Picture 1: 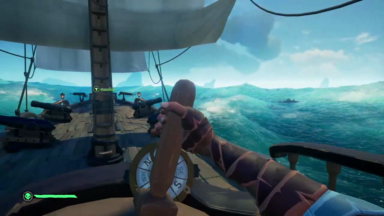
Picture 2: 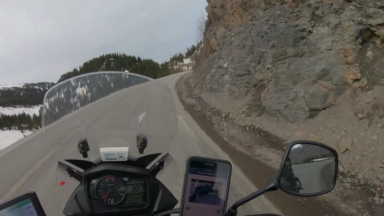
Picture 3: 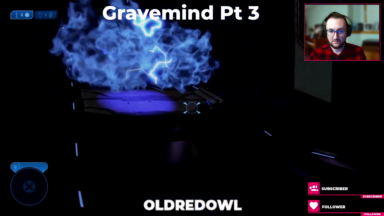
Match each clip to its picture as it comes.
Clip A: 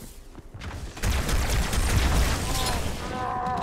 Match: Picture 3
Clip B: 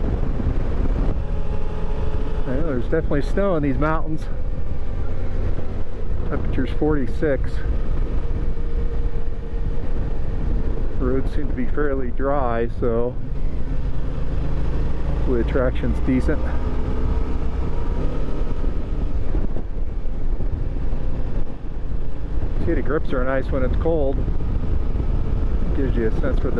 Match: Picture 2